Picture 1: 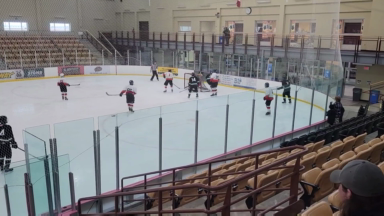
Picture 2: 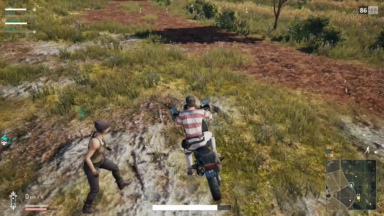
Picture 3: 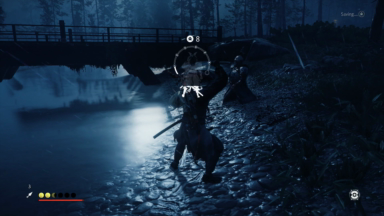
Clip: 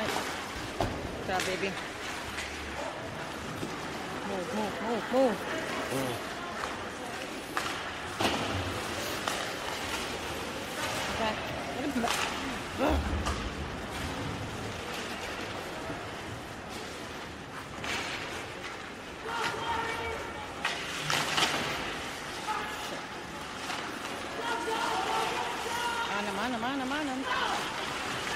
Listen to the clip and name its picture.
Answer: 1